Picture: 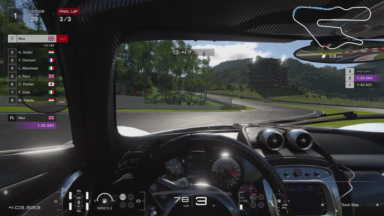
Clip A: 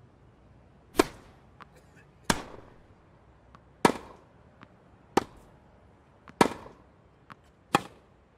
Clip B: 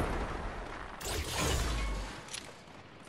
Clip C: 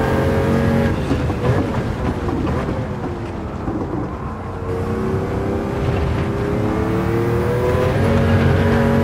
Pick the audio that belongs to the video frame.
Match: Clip C